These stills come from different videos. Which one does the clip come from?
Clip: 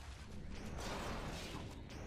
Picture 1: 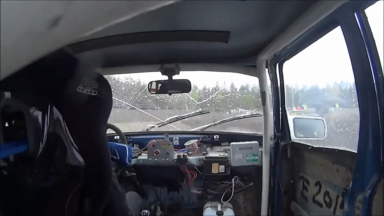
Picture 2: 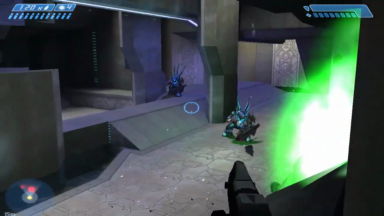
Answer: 2